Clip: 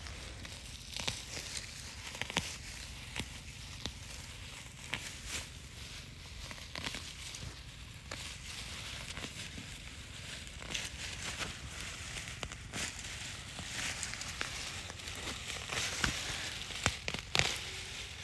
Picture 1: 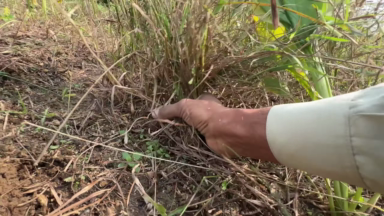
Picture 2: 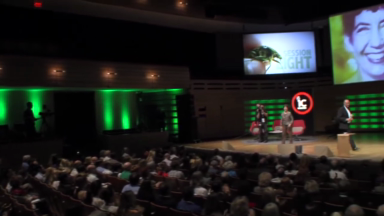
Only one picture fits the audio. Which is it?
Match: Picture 1